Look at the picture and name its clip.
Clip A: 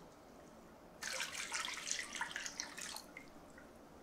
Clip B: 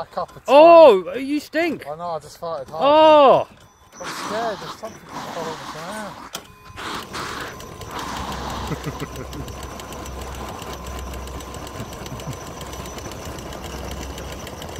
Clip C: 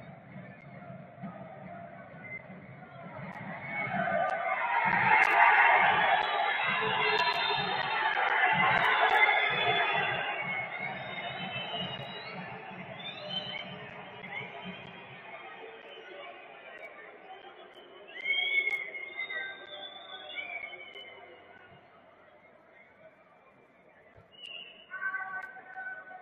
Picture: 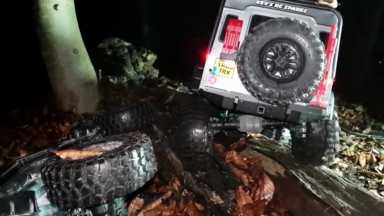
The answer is B